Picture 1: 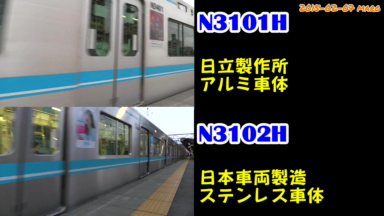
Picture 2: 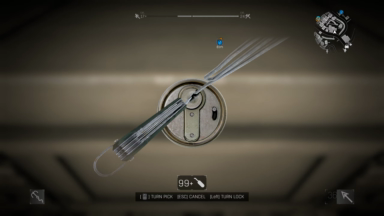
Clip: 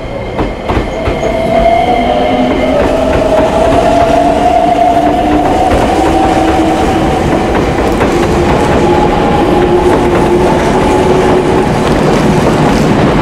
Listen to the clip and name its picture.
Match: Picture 1